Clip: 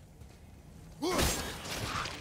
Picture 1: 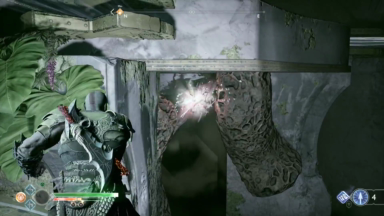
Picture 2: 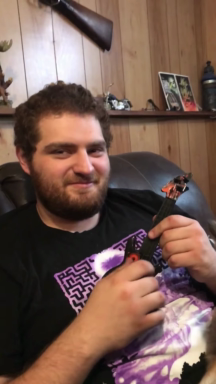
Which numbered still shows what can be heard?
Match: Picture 1